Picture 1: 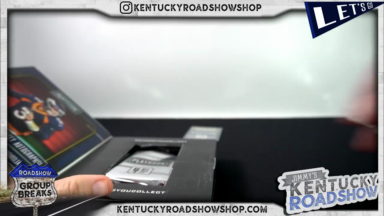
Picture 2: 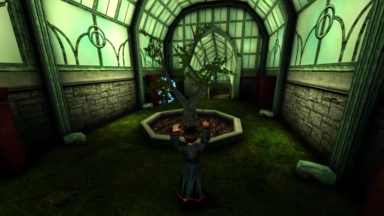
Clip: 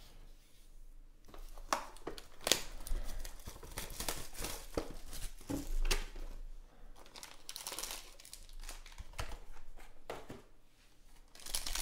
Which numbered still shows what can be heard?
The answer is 1